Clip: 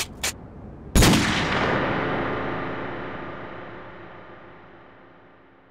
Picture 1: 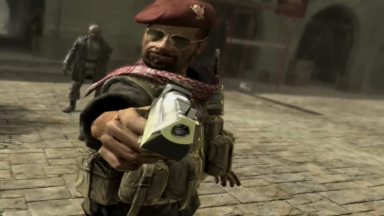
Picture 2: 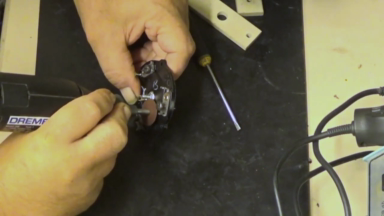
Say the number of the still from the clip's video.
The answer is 1